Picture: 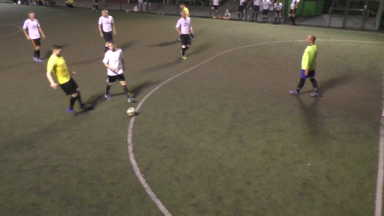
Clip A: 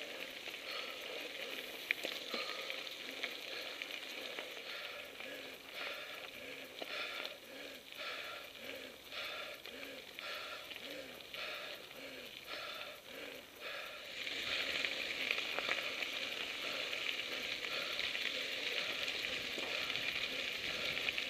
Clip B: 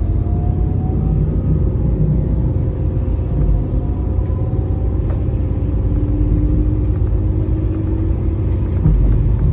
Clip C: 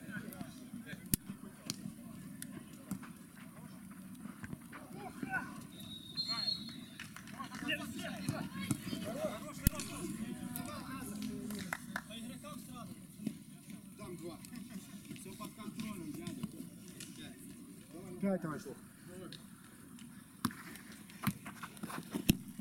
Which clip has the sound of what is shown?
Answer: C